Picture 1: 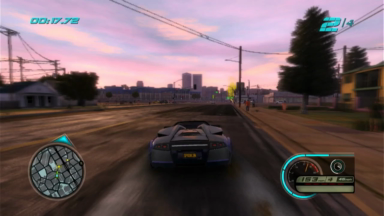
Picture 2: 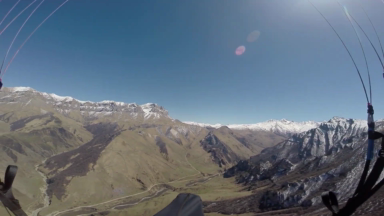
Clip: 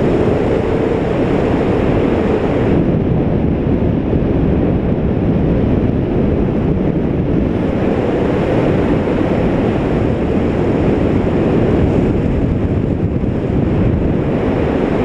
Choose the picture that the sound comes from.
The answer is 2